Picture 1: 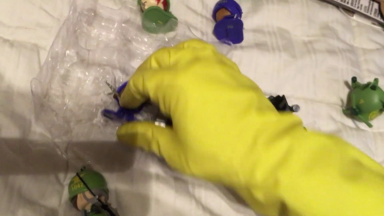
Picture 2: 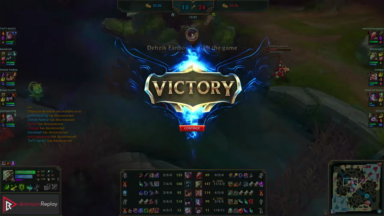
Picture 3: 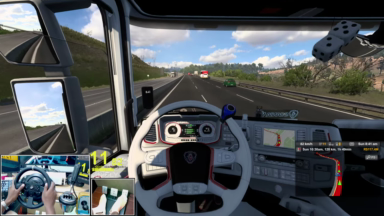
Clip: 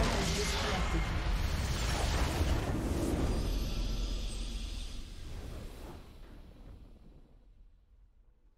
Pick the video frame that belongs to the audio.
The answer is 2